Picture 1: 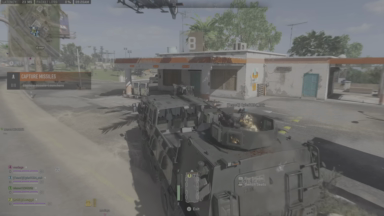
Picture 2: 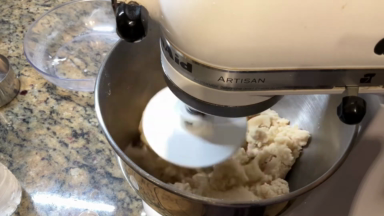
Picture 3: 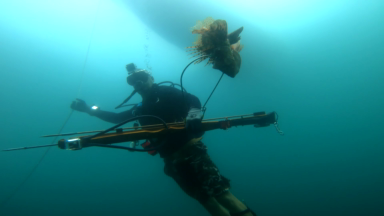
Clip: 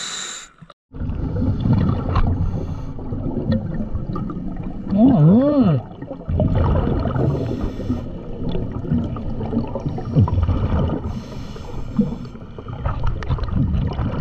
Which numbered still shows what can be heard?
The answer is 3